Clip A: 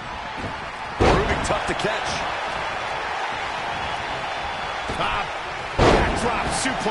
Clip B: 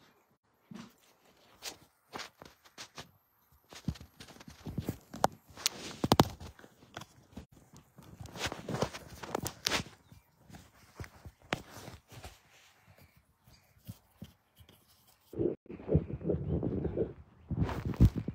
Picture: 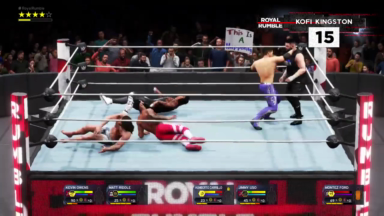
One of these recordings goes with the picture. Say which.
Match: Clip A